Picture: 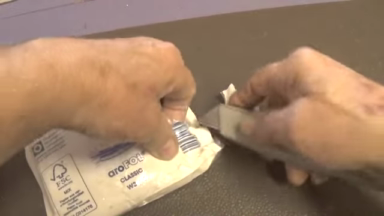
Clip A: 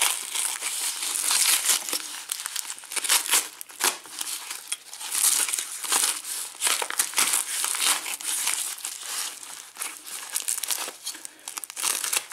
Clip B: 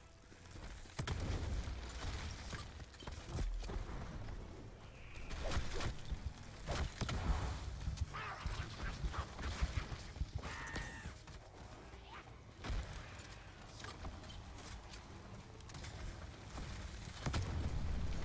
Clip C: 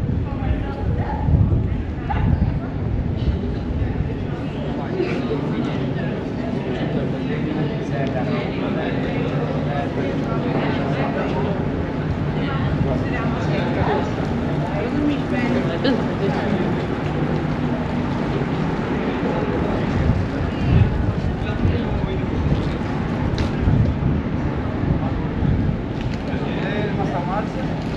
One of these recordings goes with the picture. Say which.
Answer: A